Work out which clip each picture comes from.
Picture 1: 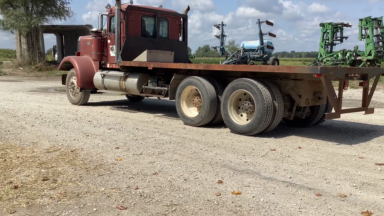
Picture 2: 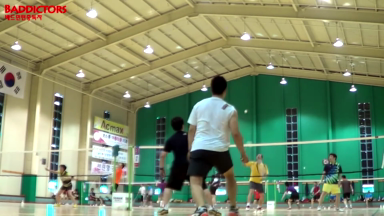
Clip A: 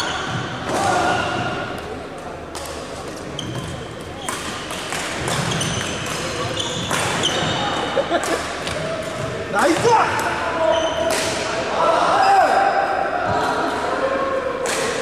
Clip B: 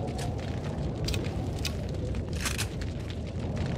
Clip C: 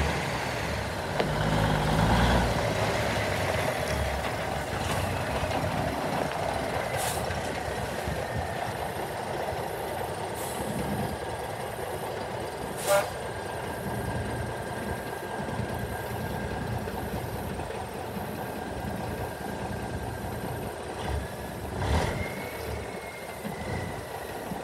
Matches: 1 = C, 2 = A